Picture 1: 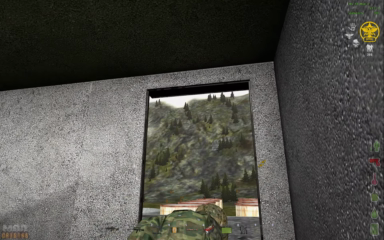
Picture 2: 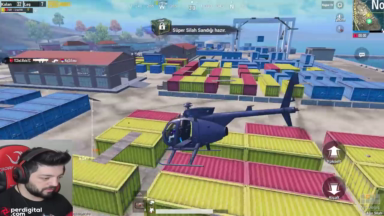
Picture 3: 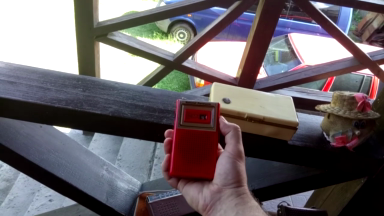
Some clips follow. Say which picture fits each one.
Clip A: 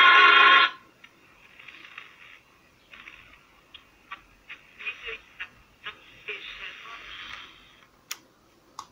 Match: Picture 3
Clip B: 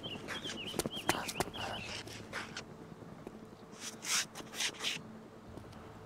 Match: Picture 1